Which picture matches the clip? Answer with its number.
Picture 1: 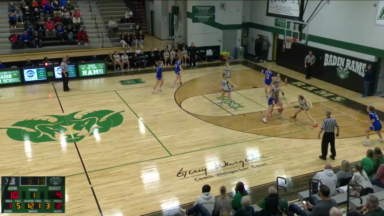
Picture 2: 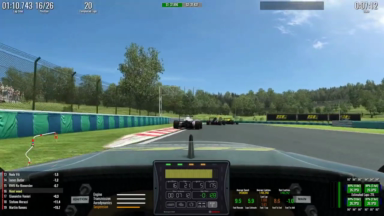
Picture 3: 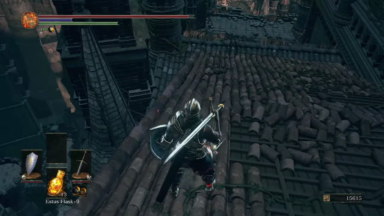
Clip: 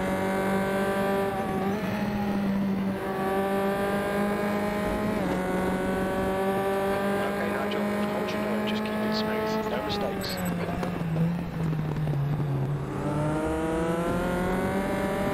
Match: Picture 2